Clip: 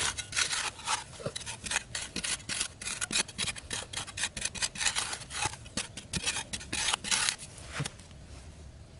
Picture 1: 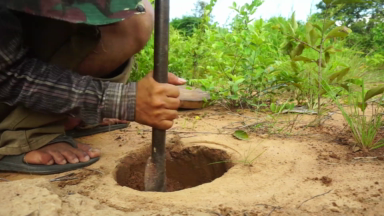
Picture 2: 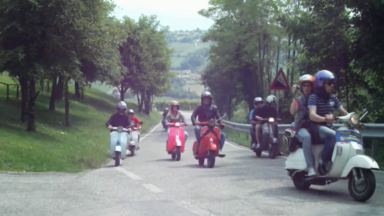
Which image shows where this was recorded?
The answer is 1